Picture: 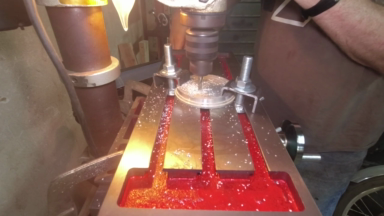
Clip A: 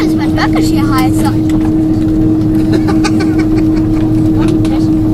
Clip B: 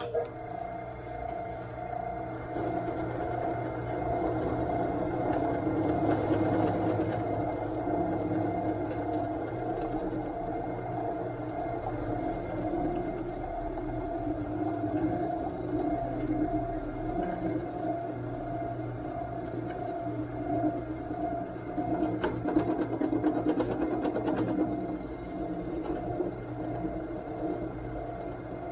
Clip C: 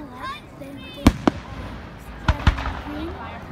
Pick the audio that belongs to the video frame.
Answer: B